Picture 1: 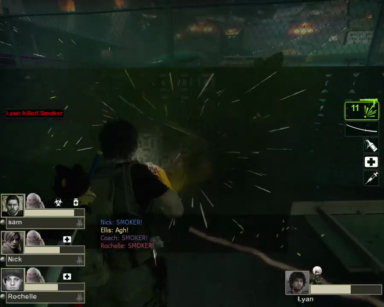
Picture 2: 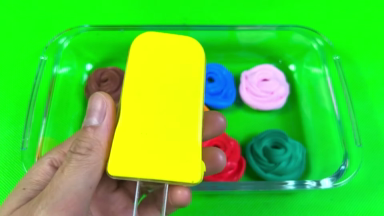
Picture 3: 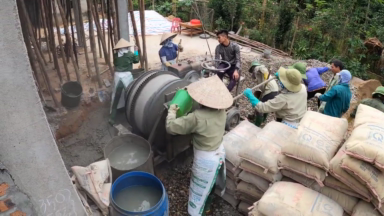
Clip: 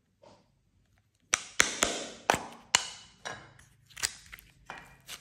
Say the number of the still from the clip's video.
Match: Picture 2